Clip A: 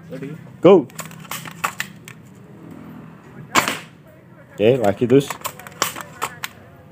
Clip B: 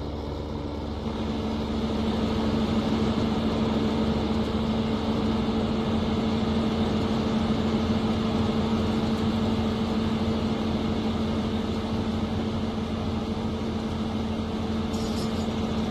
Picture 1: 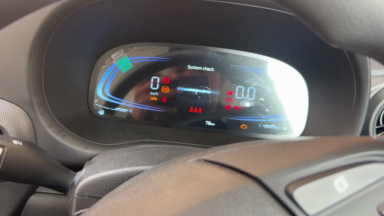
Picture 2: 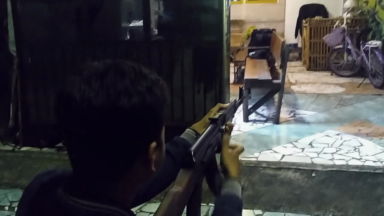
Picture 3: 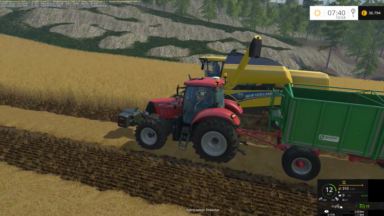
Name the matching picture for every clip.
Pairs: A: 2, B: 3